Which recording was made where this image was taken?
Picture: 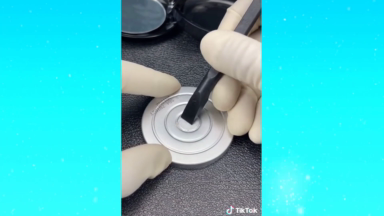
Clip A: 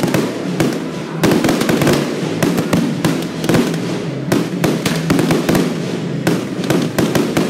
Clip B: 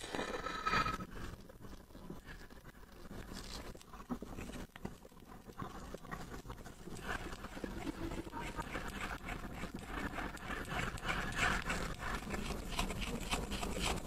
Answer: B